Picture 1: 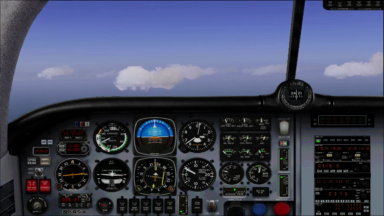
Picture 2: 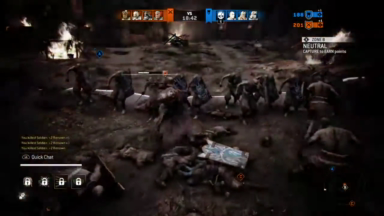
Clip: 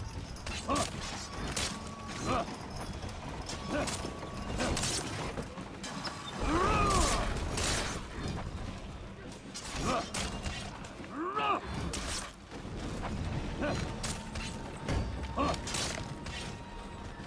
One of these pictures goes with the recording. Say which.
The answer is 2